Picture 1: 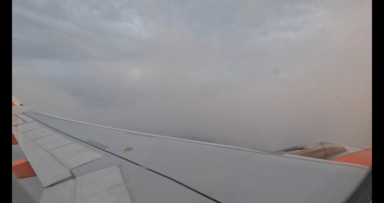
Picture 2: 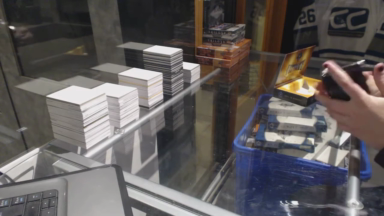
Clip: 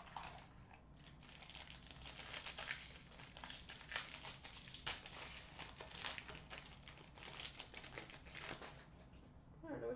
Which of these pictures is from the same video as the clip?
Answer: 2